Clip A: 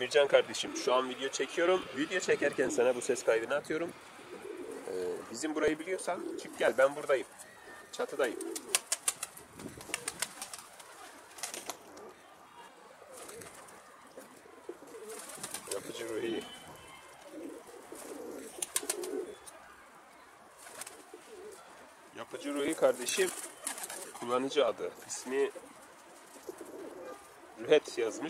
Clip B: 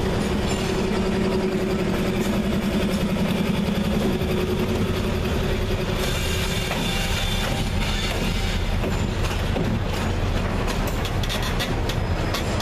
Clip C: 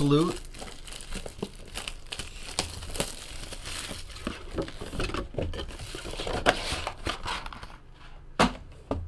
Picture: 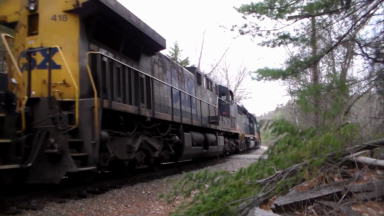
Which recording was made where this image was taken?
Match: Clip B